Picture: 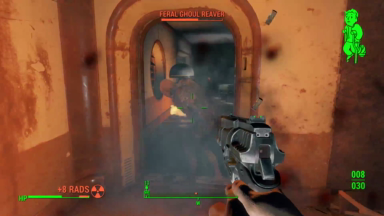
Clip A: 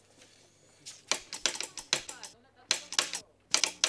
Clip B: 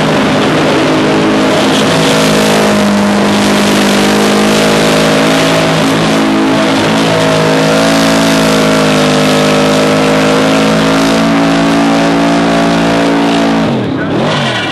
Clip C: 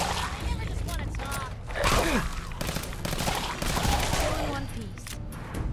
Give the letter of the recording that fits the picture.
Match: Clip C